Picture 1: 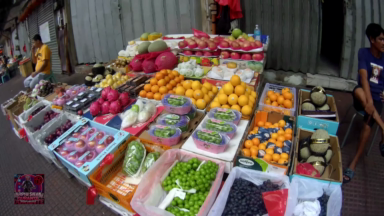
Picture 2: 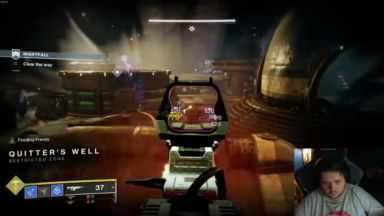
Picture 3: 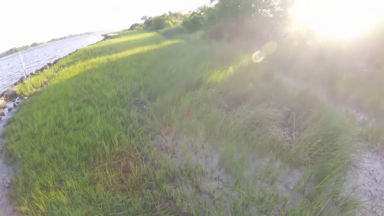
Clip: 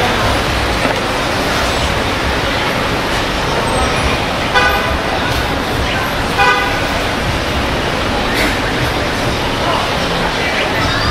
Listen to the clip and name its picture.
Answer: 1